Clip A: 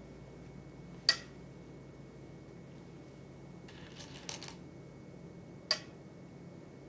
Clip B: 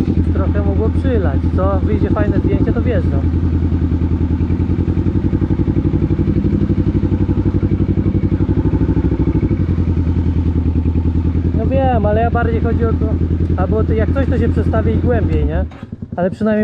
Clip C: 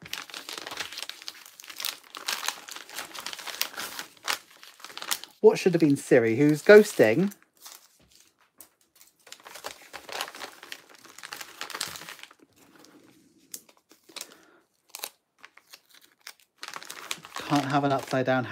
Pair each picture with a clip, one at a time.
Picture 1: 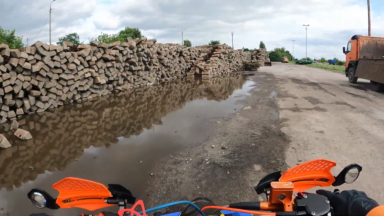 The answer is B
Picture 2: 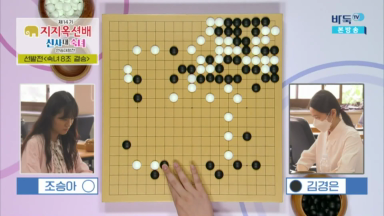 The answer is A